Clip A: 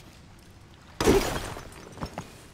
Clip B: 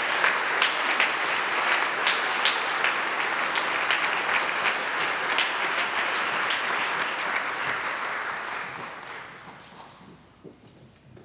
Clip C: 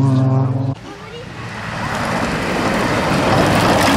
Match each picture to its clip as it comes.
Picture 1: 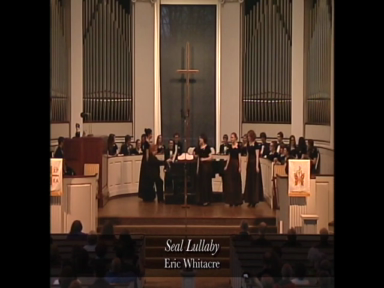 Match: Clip B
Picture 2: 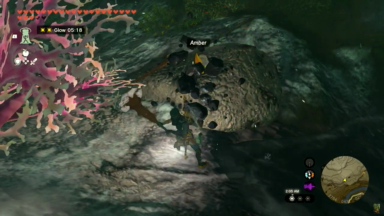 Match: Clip A